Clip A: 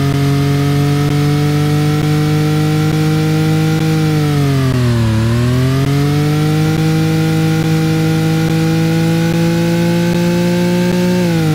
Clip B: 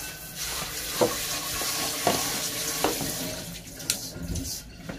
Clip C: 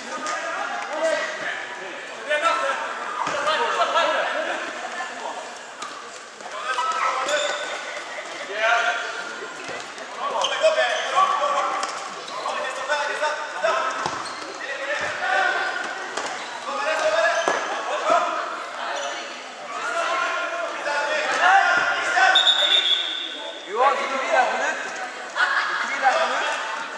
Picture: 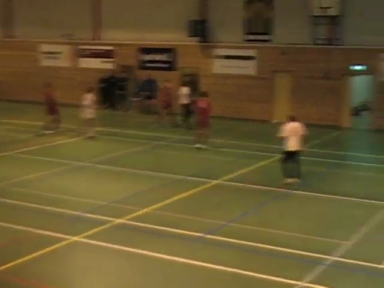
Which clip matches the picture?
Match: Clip C